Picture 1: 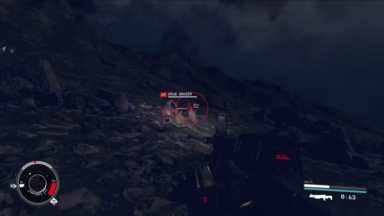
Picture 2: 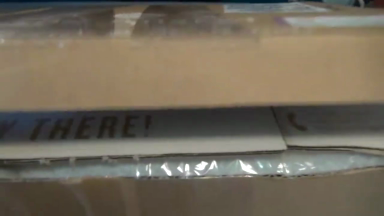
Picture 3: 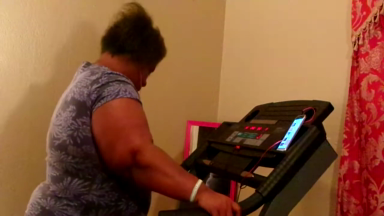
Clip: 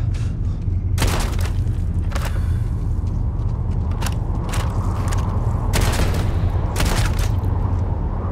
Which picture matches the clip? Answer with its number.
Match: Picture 1